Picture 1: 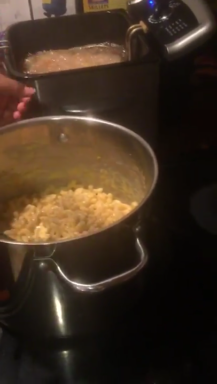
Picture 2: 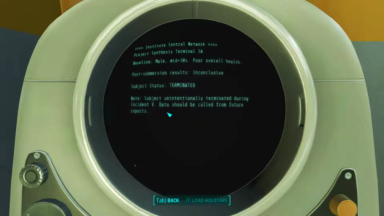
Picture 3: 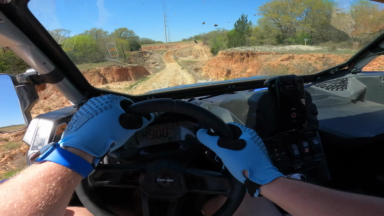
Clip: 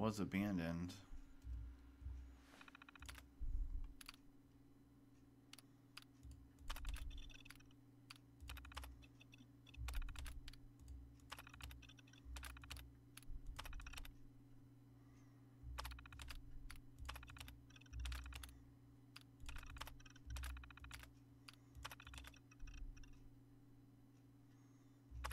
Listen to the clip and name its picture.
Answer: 2